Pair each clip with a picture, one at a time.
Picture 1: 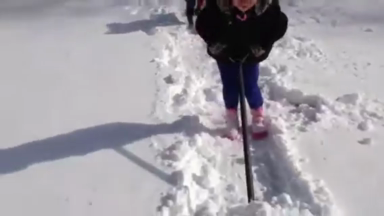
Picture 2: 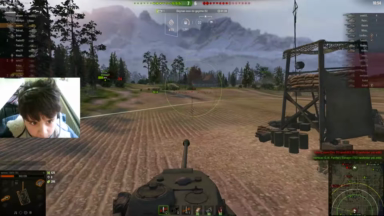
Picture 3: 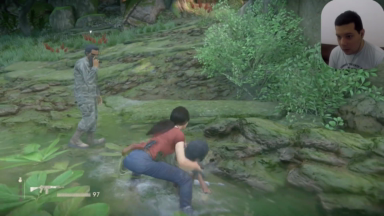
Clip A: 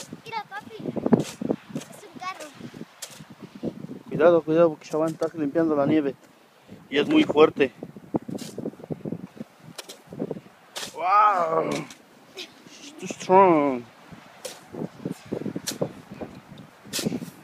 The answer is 1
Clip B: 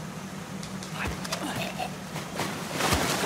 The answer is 3